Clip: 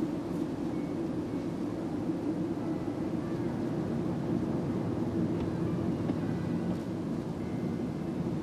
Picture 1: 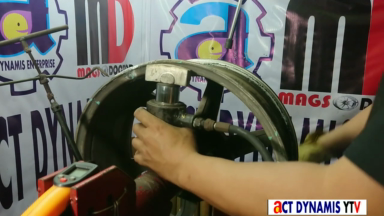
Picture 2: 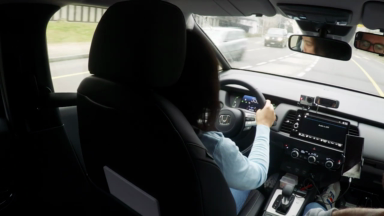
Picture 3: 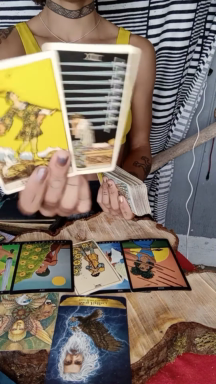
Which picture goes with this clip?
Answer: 2